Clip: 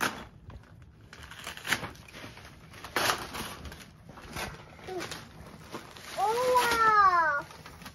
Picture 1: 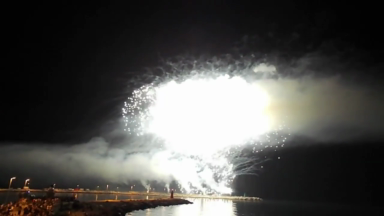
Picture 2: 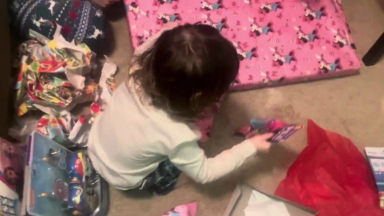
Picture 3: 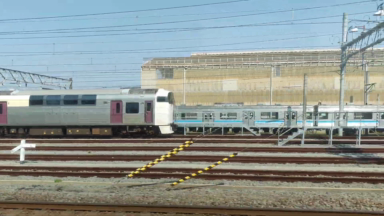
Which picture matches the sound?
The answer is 2